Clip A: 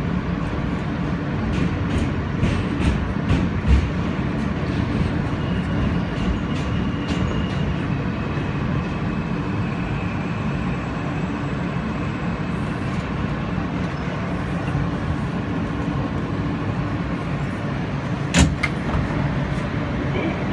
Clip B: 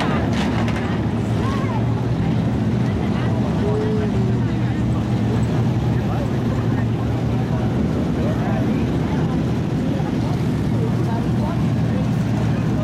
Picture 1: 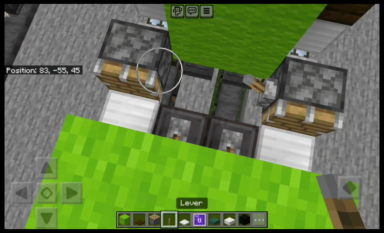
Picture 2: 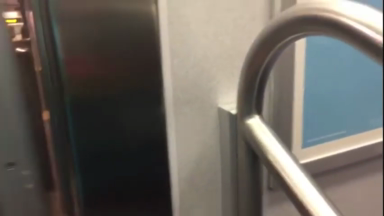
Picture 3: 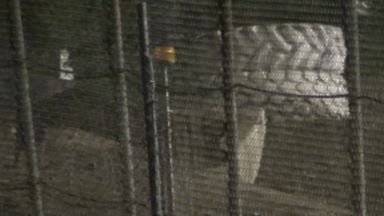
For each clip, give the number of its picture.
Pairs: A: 2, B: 3